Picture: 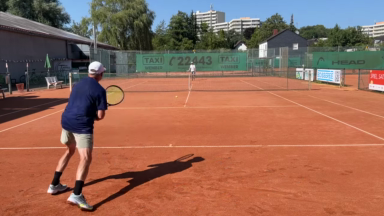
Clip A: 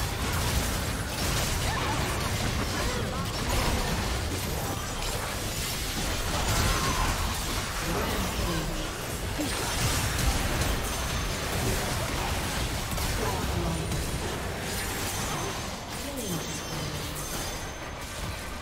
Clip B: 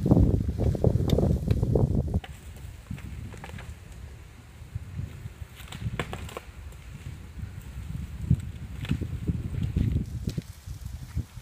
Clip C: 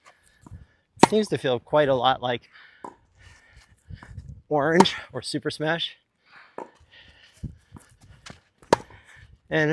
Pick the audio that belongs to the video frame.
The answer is C